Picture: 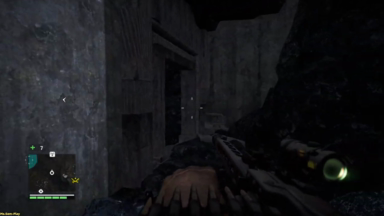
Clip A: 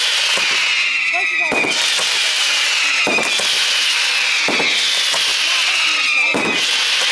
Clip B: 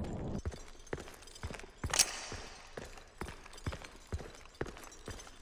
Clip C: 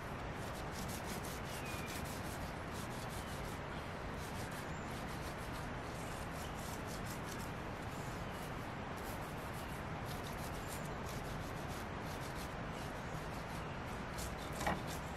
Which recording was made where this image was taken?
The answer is B